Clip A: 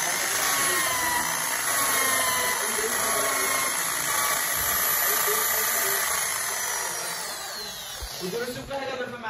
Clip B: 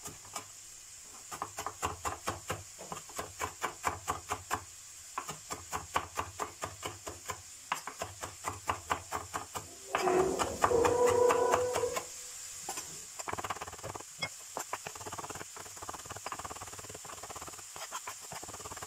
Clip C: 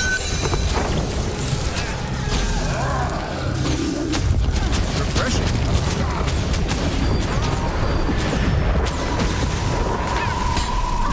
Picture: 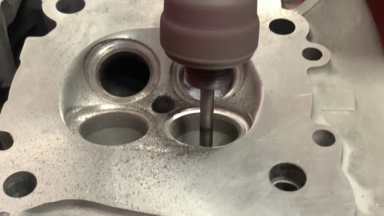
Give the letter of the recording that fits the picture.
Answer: A